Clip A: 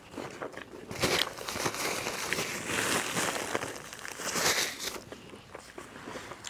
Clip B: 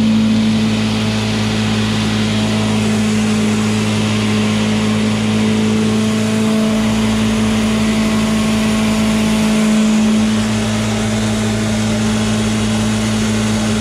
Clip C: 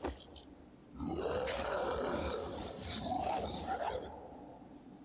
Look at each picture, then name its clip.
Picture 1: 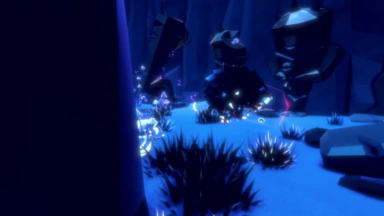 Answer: C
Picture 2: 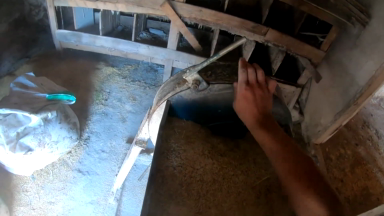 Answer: B